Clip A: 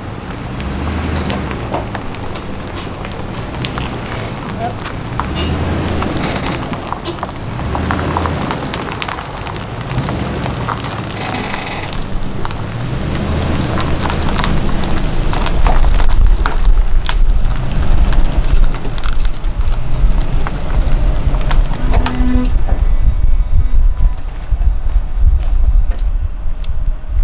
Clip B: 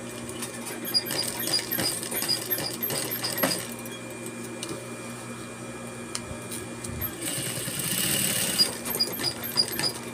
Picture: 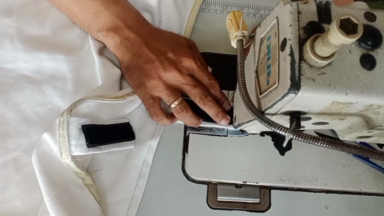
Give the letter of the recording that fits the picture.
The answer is B